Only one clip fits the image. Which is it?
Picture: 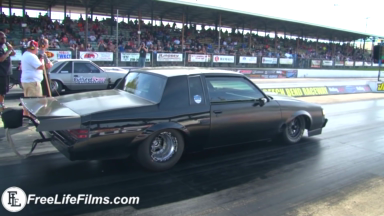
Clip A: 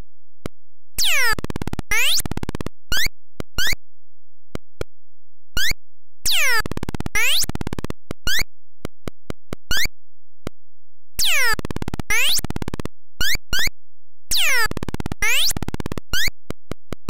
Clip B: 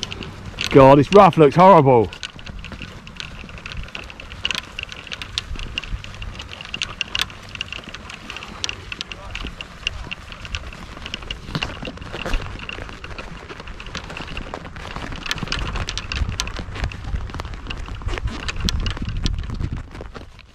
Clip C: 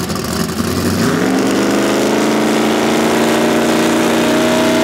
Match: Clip C